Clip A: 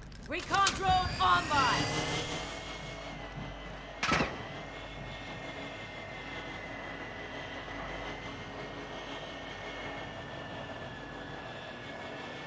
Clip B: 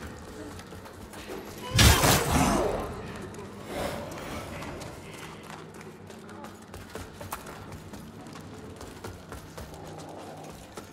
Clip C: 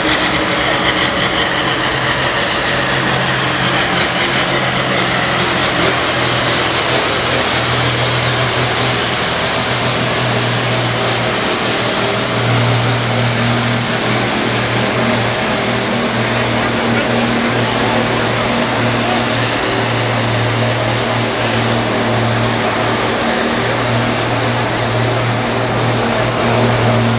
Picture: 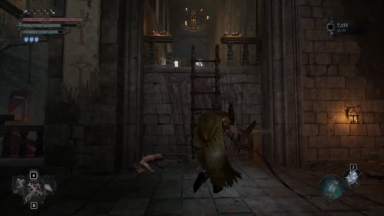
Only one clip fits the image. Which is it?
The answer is B